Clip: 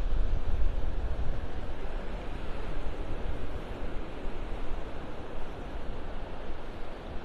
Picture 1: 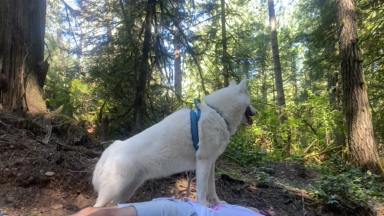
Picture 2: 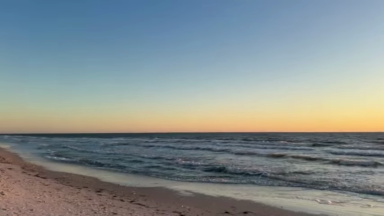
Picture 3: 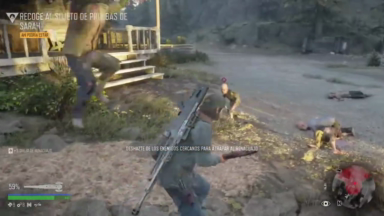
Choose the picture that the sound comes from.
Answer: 2